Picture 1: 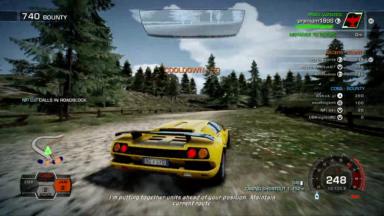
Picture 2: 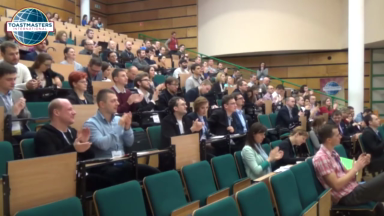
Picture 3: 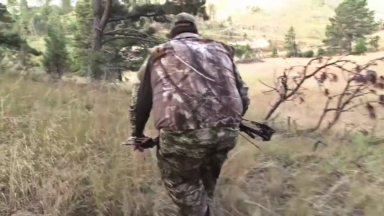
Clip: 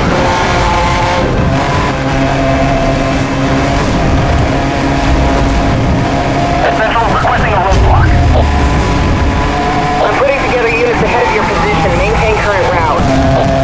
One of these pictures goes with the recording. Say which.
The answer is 1